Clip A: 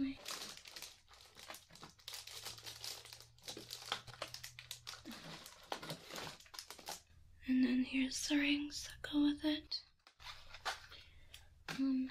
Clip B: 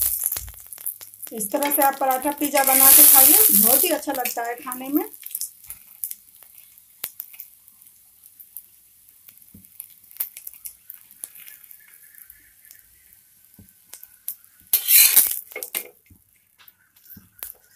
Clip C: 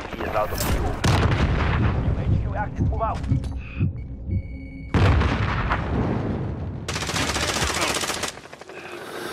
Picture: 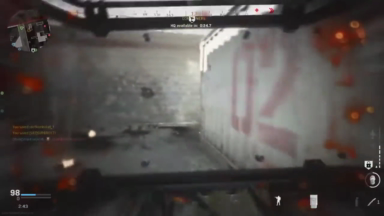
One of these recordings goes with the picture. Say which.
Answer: C